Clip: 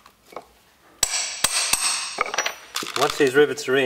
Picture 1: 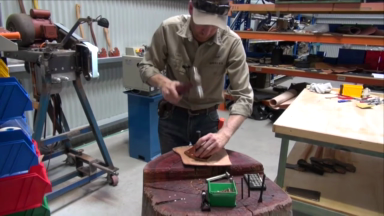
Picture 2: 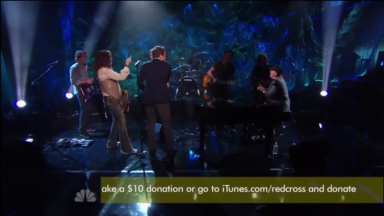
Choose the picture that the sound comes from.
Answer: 1